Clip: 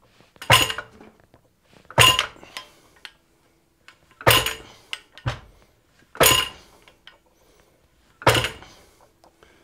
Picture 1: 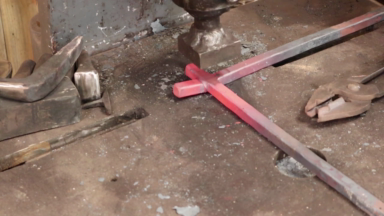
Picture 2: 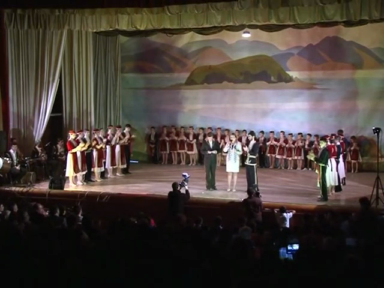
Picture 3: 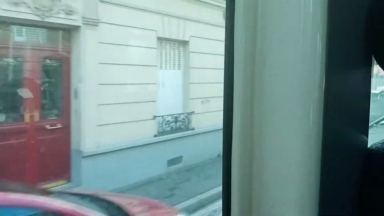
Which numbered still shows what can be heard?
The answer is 1